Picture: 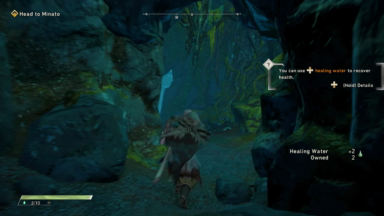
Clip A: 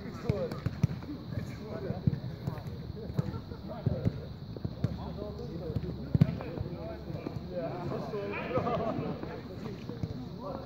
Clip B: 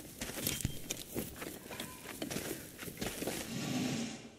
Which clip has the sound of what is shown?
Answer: B